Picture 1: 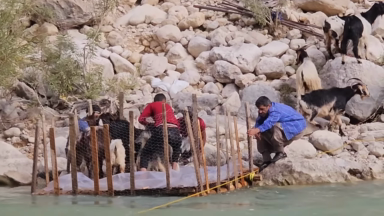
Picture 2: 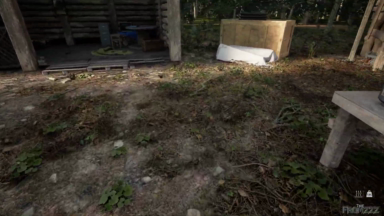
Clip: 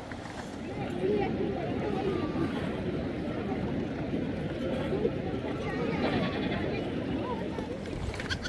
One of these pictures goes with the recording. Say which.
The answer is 1